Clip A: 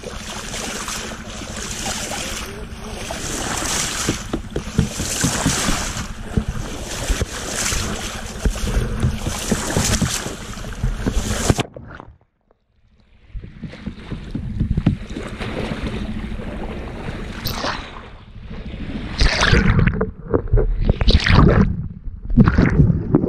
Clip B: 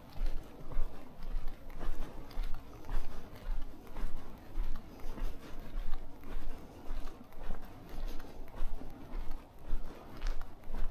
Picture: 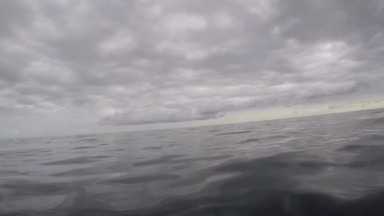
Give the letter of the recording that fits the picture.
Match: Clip A